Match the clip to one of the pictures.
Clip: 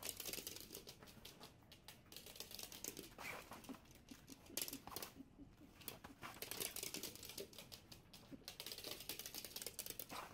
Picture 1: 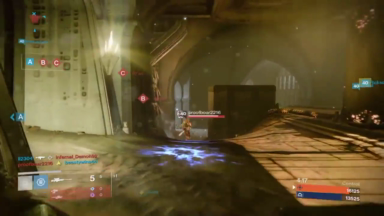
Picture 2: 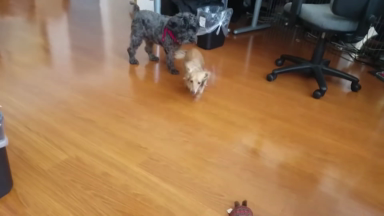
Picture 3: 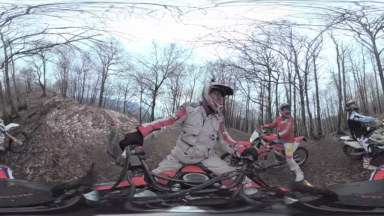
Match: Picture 2